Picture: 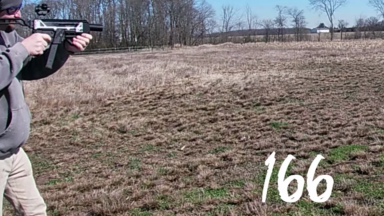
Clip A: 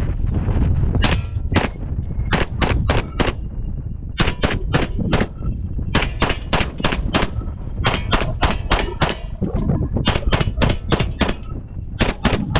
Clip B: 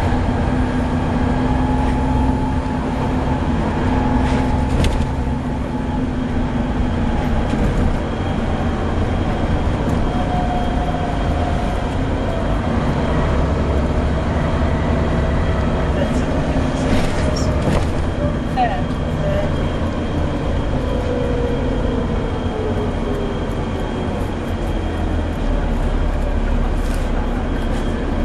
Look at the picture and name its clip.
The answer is A